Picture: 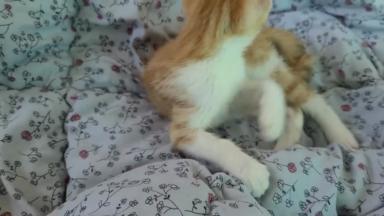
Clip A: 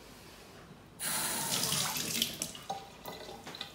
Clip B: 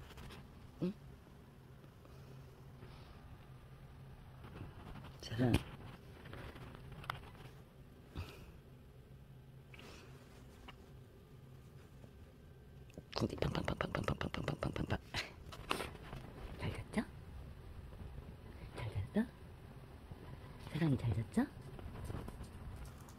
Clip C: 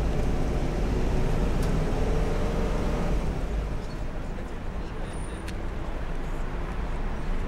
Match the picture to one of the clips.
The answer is B